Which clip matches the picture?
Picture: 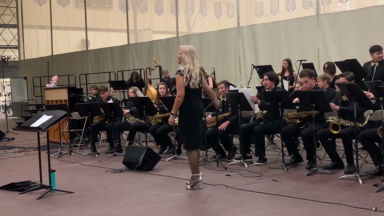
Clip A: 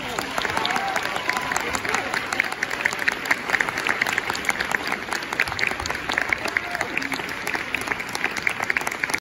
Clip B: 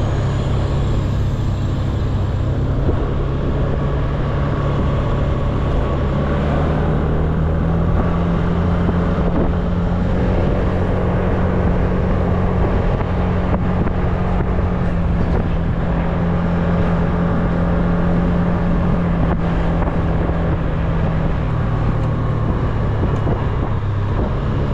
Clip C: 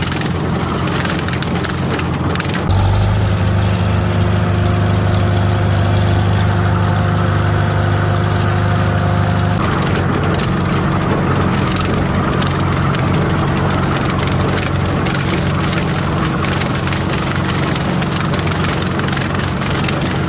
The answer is A